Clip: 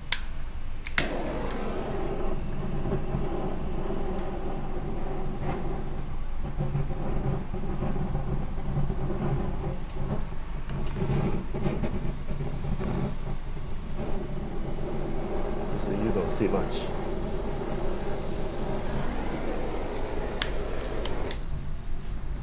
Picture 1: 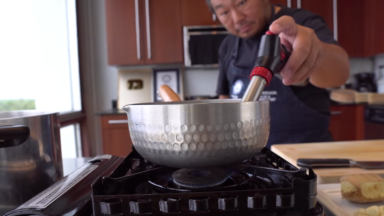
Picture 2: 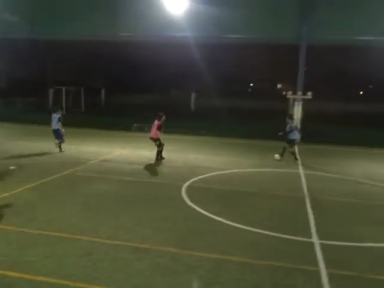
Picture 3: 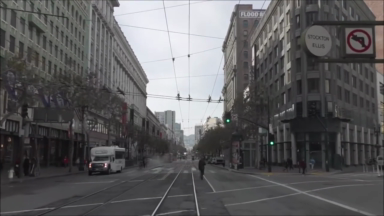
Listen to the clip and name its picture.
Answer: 1